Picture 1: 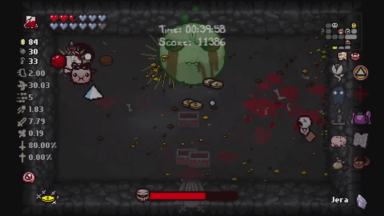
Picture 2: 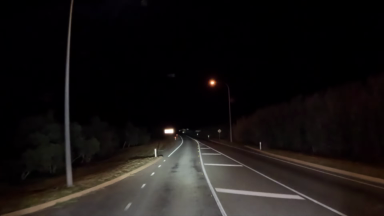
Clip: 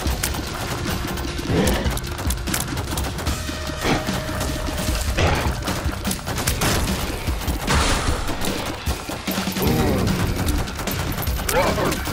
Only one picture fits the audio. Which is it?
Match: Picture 1